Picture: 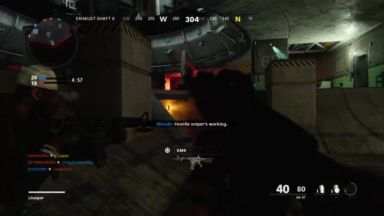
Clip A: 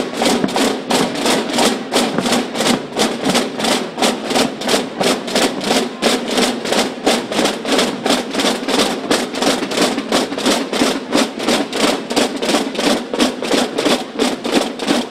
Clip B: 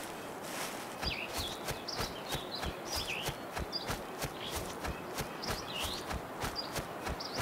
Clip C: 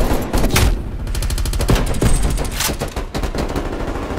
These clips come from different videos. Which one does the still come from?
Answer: C